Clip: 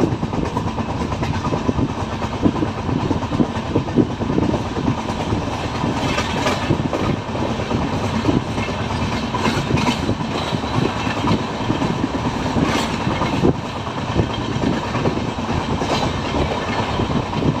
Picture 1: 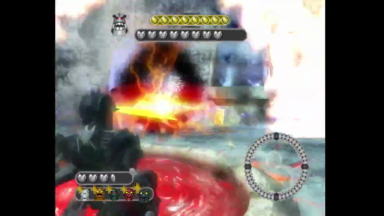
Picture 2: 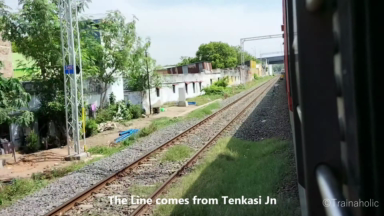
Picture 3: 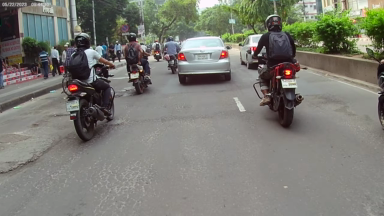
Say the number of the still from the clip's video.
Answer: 2